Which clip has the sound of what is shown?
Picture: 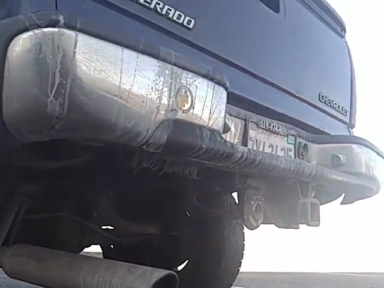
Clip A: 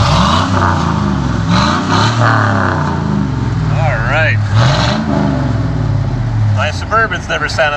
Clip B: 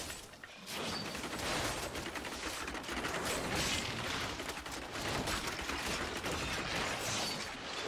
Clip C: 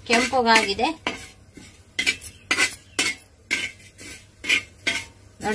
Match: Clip A